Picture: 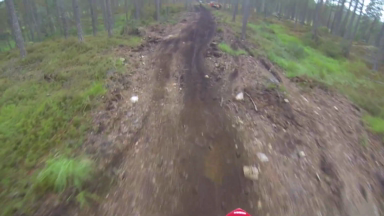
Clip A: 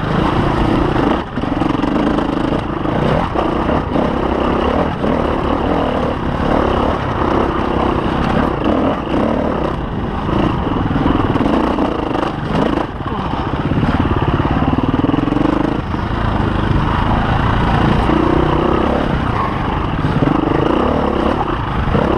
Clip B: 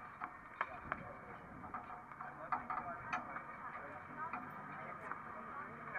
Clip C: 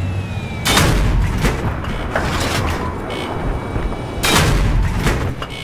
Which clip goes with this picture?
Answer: A